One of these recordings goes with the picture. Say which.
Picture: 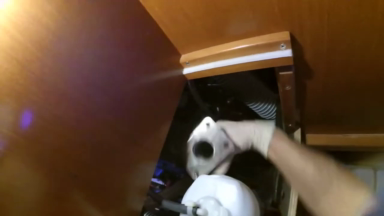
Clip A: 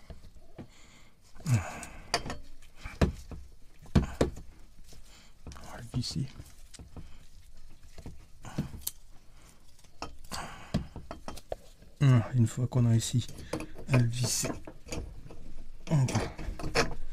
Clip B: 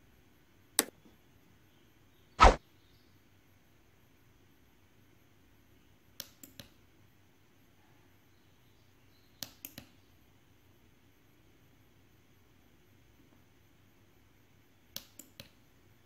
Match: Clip A